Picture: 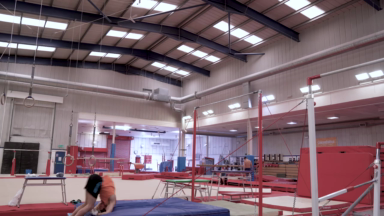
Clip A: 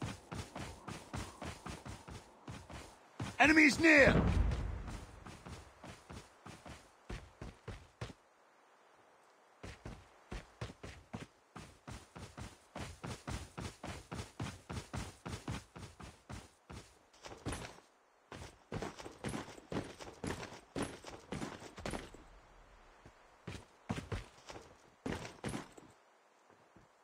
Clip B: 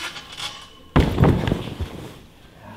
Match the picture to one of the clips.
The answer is B